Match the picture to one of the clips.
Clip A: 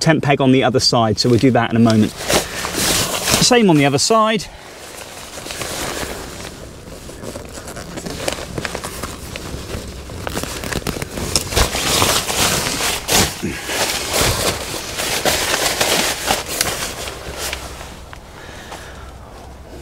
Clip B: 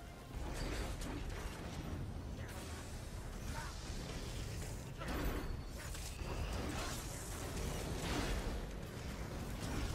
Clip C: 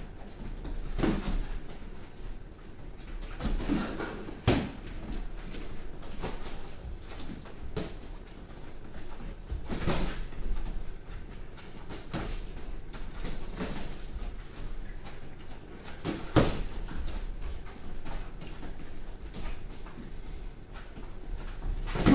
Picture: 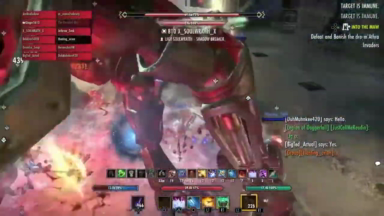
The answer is B